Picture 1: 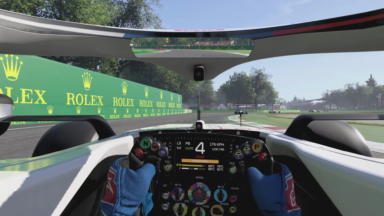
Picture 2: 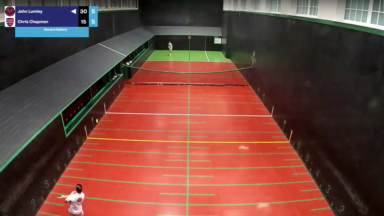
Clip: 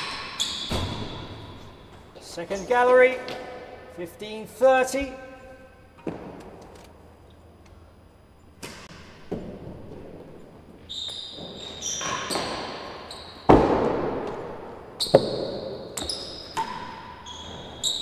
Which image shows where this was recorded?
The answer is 2